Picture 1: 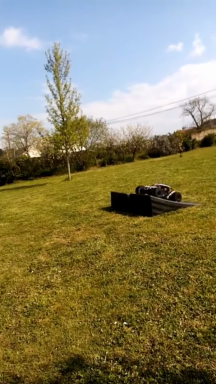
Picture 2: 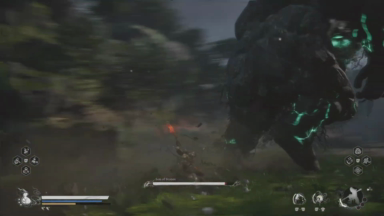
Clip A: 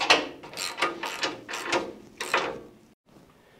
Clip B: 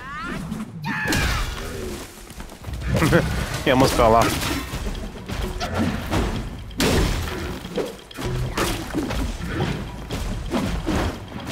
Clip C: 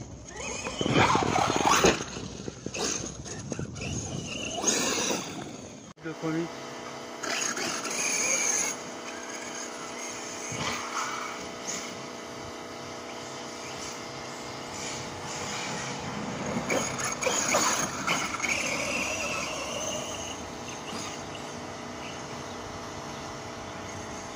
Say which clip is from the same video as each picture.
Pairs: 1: C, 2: B